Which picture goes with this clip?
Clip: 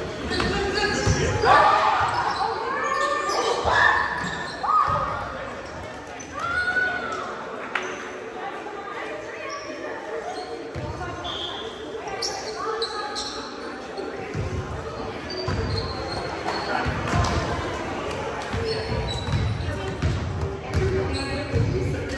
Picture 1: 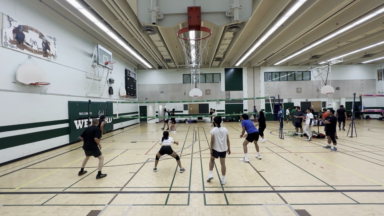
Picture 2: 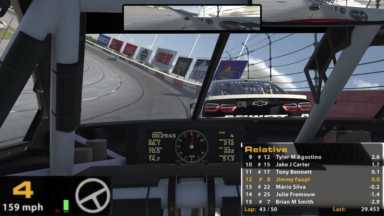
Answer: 1